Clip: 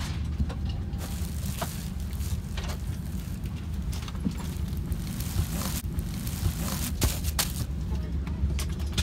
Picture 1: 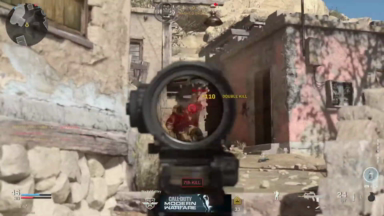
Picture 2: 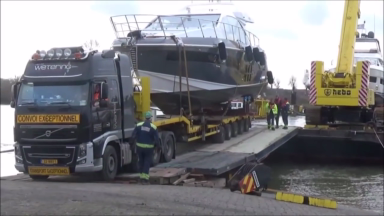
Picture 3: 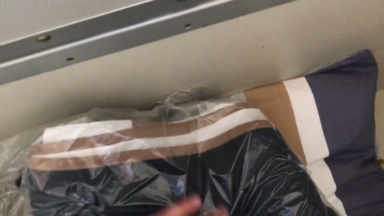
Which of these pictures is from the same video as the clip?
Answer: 3